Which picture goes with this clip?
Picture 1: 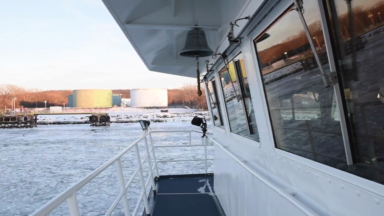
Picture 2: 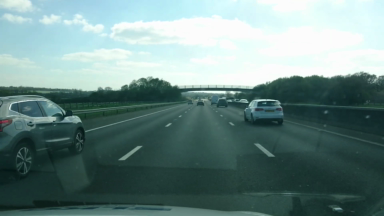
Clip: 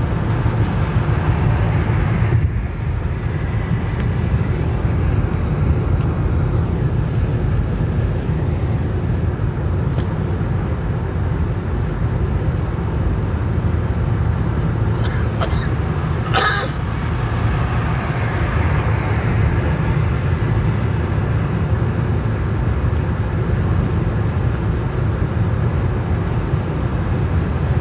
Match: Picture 2